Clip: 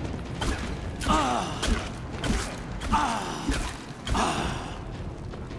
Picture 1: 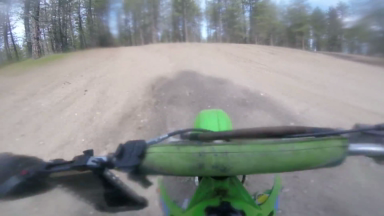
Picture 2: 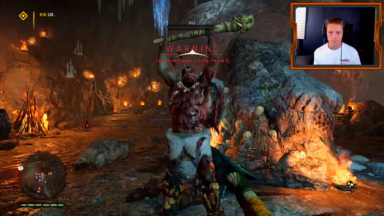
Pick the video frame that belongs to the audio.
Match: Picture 2